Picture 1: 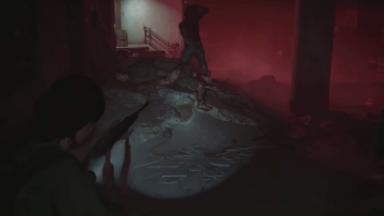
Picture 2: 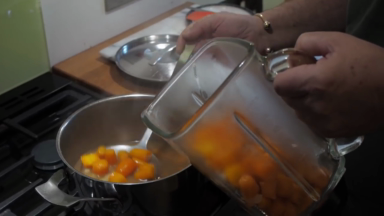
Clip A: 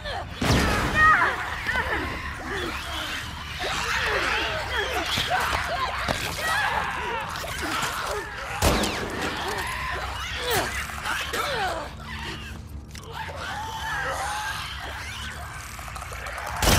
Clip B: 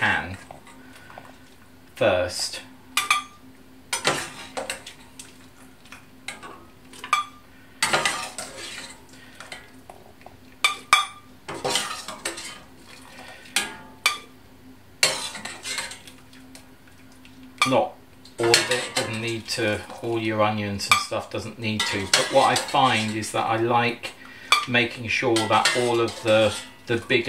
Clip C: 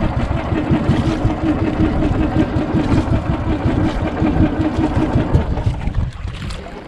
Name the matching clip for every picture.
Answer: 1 A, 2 B